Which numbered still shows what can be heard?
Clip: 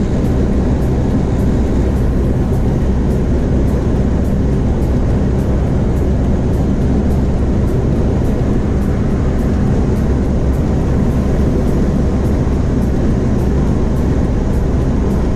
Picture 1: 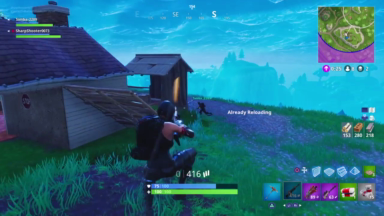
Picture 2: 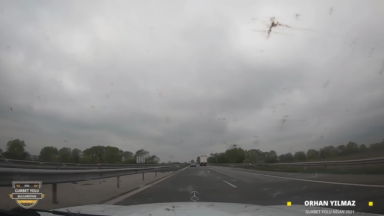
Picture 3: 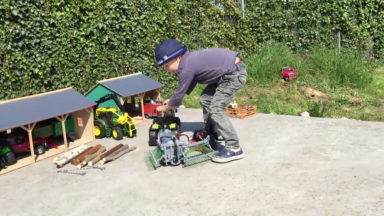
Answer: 2